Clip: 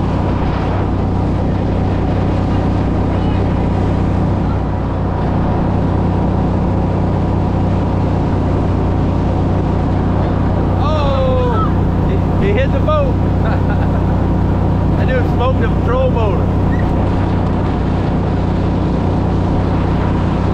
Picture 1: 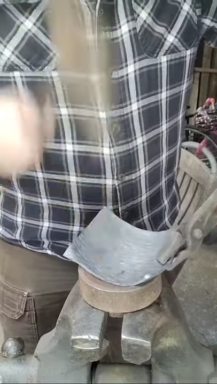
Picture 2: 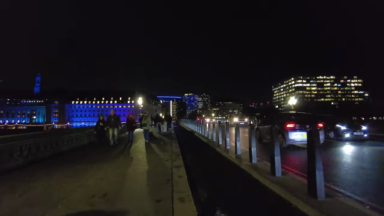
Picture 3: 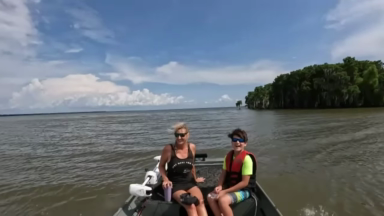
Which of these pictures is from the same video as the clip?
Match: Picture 3